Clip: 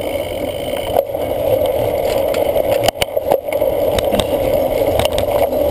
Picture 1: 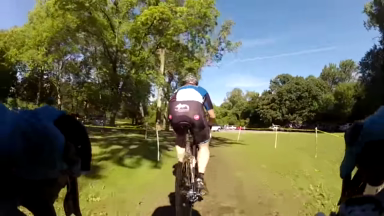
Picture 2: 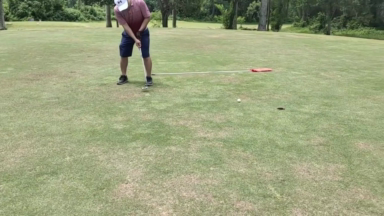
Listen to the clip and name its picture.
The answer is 1